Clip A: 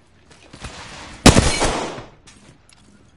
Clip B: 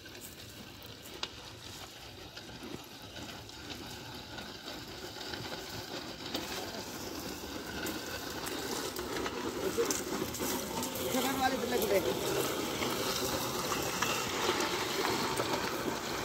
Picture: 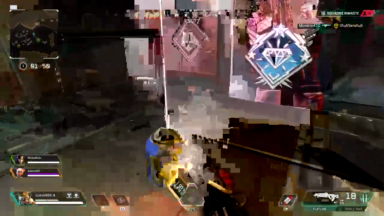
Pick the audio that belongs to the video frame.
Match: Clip A